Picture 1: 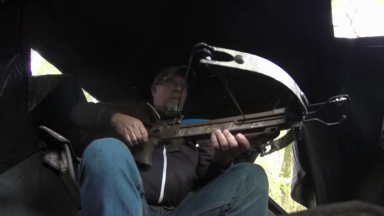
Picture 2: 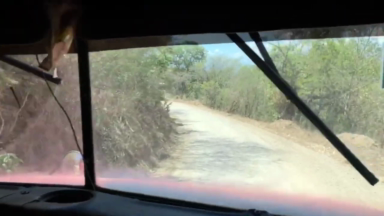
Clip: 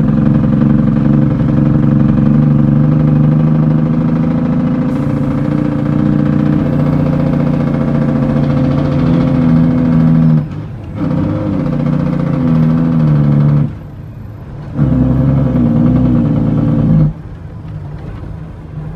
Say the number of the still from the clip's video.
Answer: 2